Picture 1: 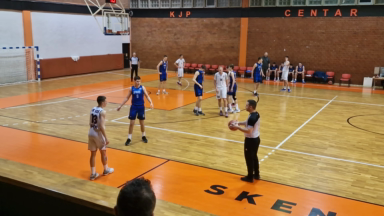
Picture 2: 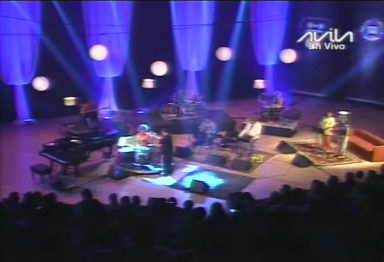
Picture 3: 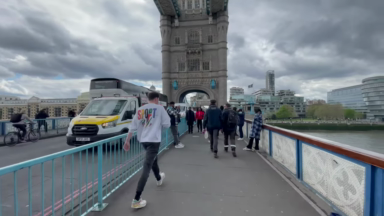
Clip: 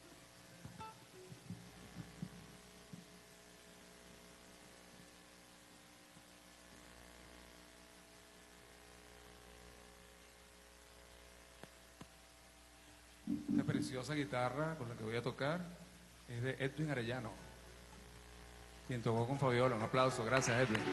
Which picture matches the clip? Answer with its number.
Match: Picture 2